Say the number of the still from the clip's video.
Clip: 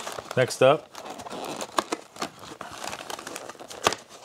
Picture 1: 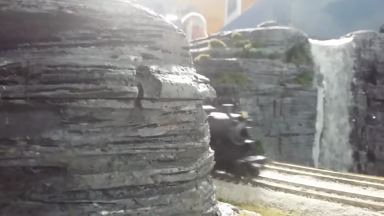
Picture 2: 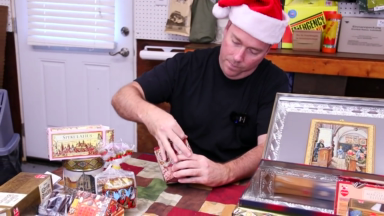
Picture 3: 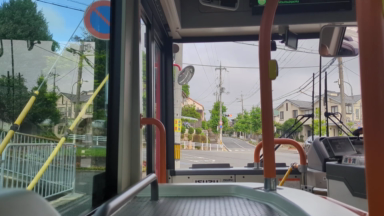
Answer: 2